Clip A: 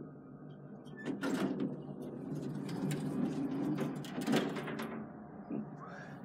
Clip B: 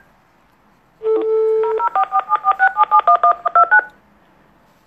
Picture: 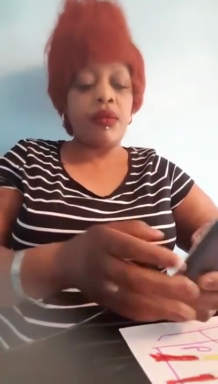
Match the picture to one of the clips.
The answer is B